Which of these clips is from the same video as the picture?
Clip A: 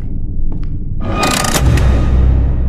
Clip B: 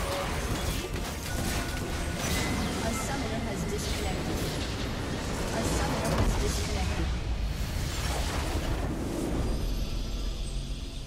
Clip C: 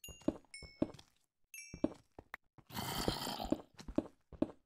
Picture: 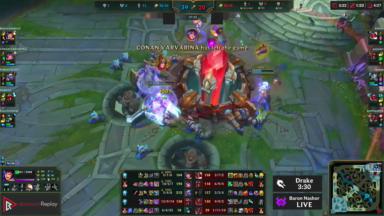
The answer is B